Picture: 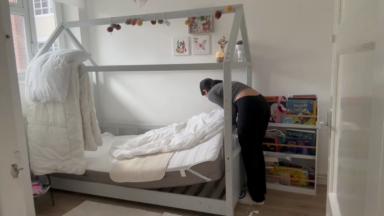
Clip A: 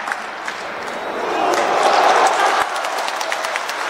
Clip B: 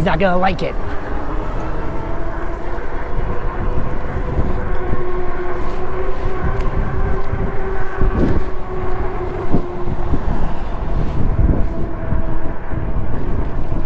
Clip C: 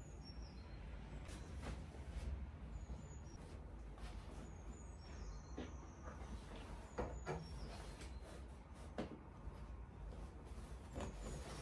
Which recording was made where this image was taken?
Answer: C